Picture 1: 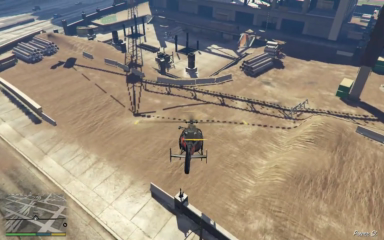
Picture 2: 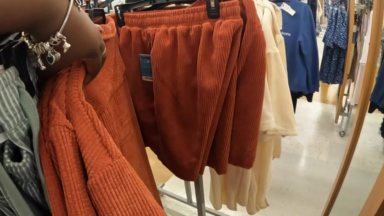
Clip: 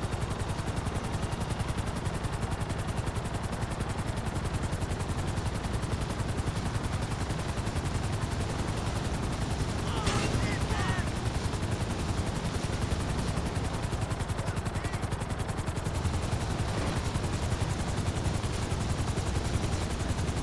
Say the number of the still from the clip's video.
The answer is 1